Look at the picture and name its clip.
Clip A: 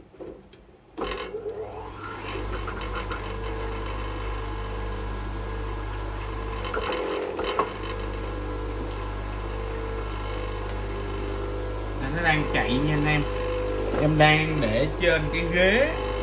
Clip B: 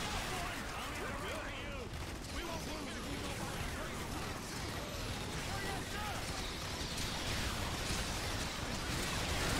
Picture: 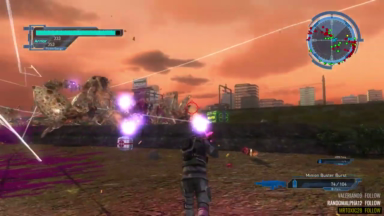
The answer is B